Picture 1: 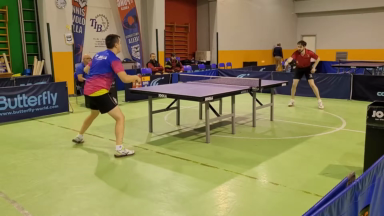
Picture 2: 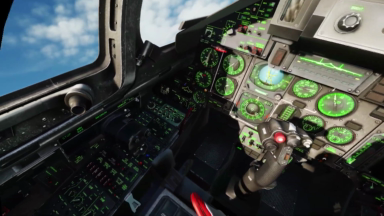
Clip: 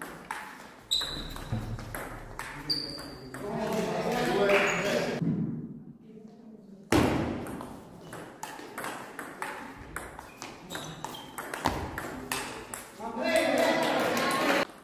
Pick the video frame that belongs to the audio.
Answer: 1